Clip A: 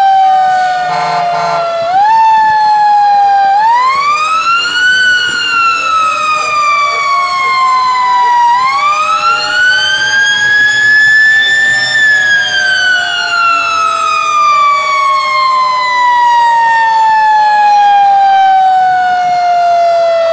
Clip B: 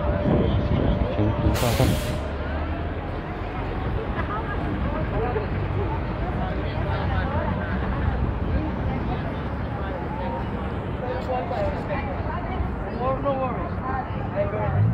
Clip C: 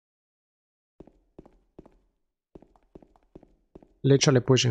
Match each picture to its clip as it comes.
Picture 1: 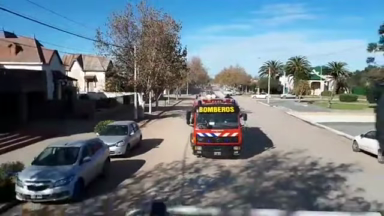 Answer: A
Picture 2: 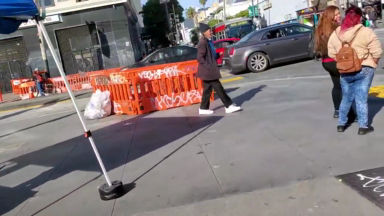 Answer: B